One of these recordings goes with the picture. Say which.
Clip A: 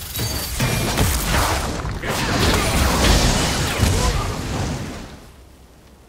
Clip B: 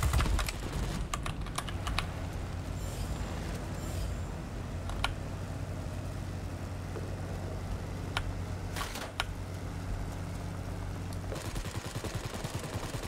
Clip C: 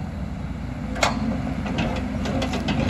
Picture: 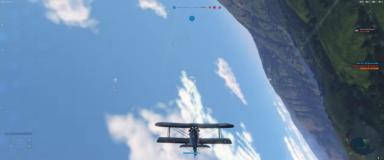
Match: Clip B